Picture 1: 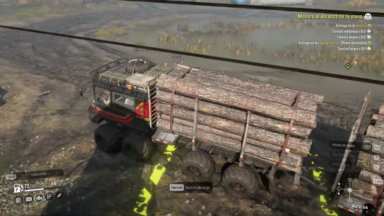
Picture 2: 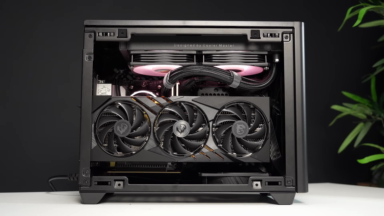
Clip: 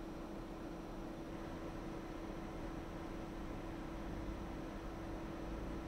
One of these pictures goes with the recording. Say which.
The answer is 2